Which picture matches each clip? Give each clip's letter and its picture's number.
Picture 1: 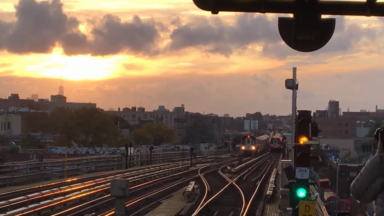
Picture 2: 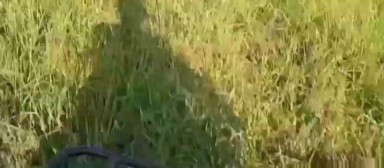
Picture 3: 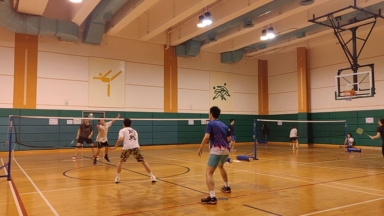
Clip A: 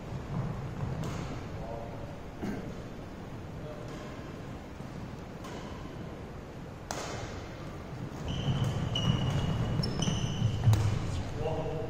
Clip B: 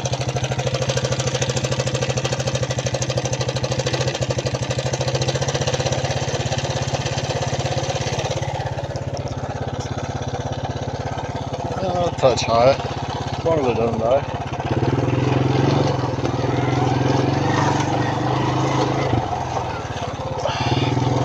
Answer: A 3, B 2